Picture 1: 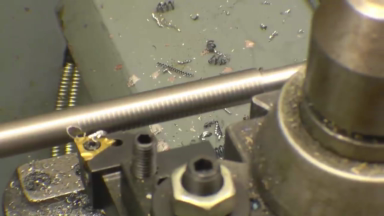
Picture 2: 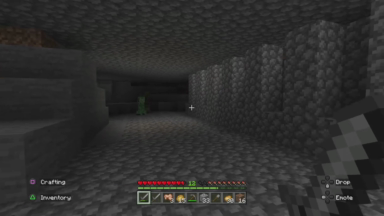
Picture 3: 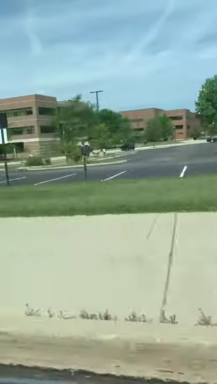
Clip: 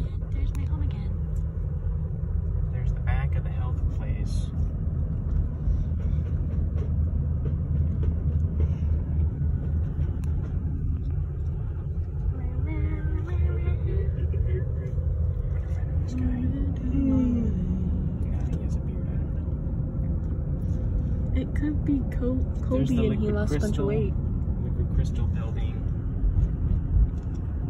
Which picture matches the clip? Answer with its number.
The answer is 3